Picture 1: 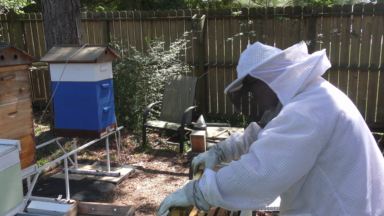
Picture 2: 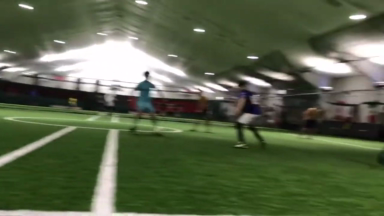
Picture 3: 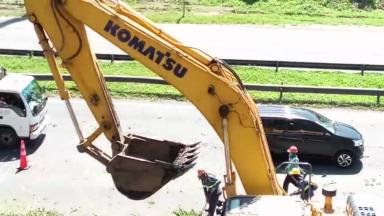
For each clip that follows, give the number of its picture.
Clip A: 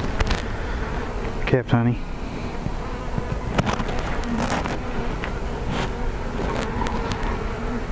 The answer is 1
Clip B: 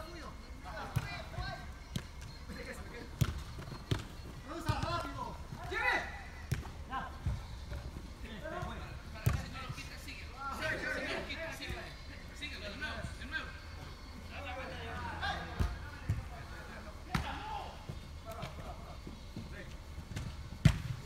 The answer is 2